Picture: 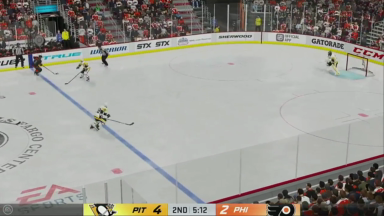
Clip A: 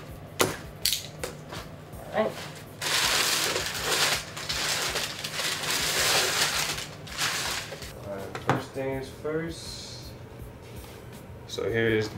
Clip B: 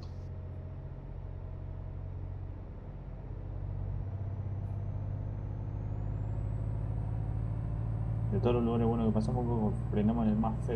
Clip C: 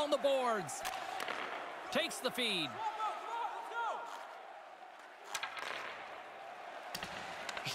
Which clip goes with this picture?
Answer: C